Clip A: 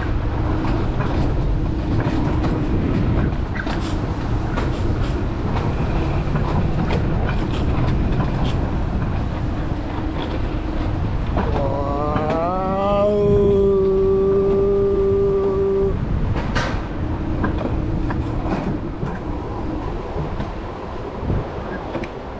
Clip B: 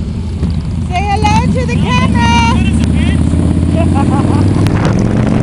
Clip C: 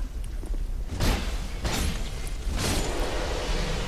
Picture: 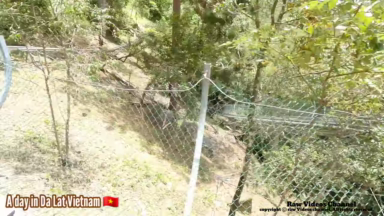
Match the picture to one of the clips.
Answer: A